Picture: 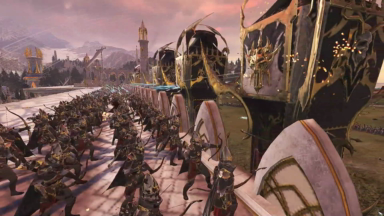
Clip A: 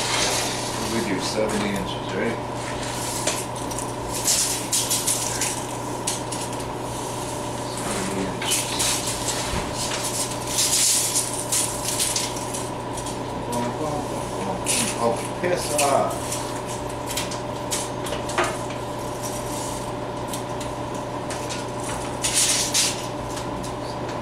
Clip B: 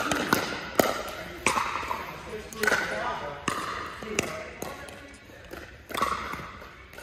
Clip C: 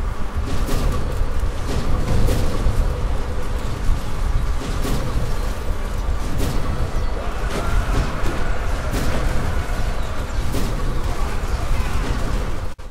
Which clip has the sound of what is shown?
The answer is C